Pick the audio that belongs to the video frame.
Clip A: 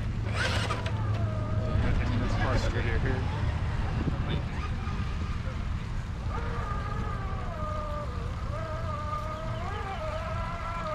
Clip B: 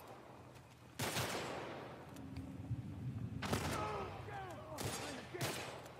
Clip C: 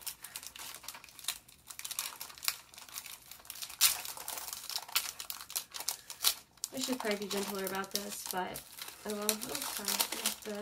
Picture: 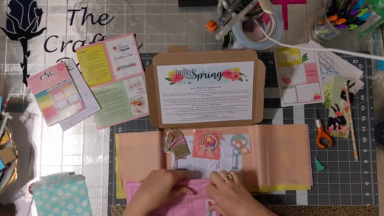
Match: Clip C